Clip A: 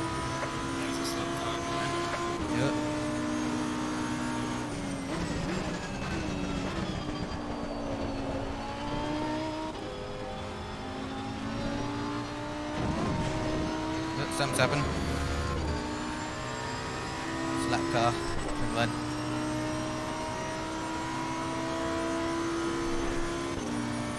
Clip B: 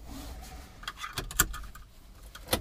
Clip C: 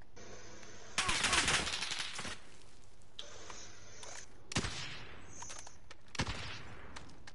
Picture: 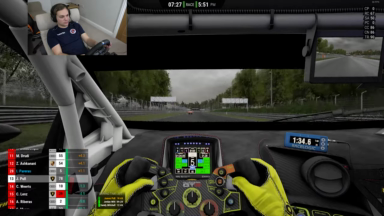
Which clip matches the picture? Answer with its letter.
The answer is A